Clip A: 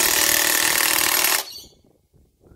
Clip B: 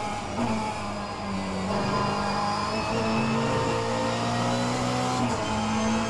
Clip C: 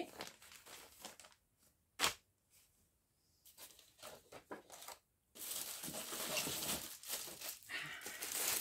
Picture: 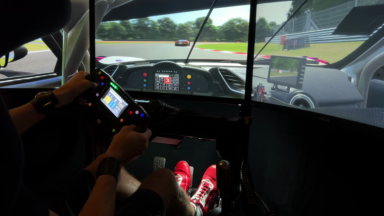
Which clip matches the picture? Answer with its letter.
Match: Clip B